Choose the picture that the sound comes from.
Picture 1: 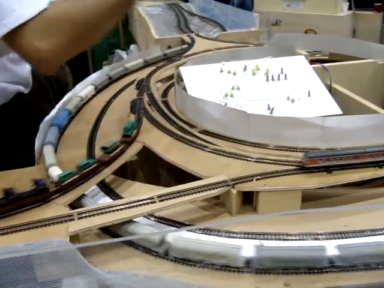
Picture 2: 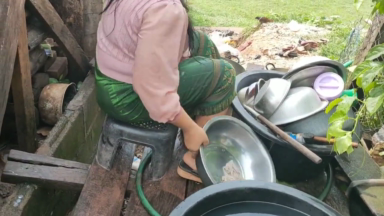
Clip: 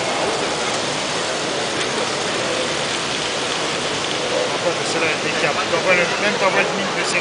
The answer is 1